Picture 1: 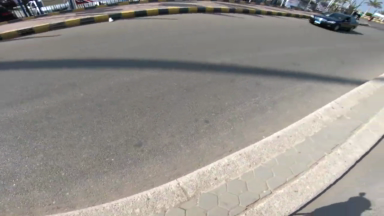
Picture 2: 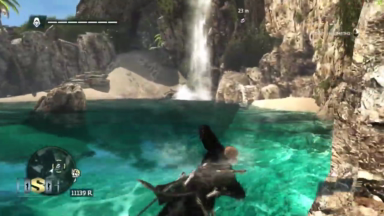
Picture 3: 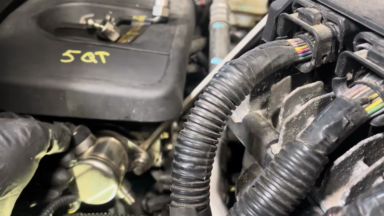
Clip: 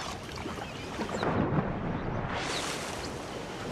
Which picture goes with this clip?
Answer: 2